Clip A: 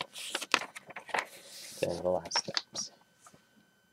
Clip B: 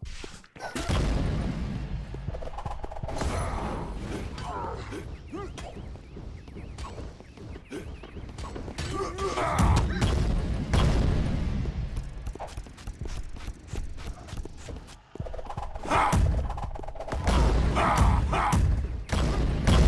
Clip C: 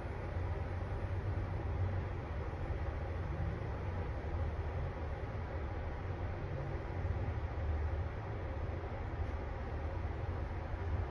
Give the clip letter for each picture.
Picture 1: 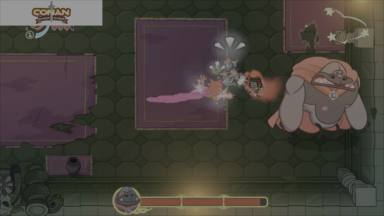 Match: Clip B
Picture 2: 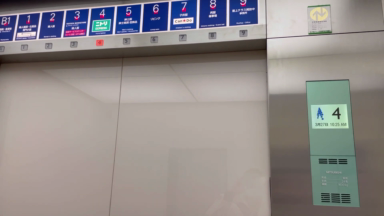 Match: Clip C